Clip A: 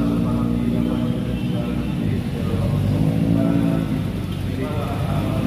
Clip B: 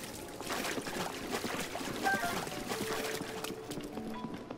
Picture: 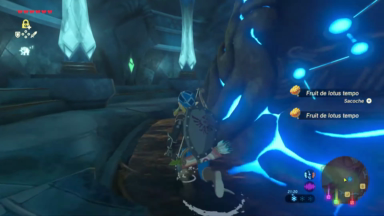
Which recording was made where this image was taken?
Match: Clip B